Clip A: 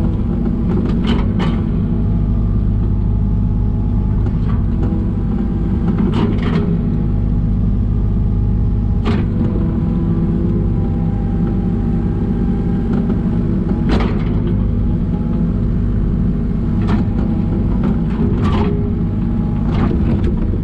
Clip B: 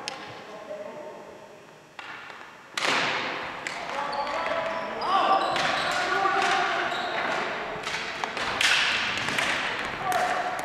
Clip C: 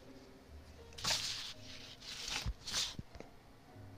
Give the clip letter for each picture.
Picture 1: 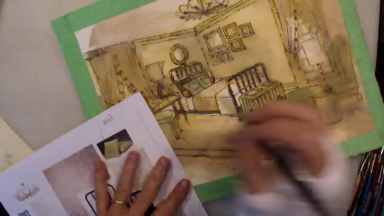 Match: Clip C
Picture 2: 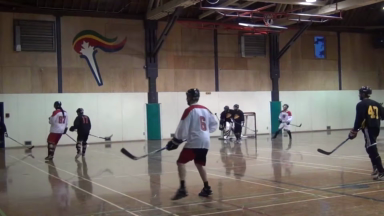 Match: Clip B